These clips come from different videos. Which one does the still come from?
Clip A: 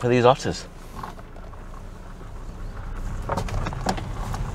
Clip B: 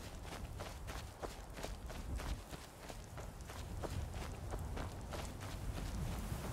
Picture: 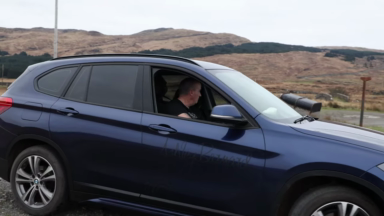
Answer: A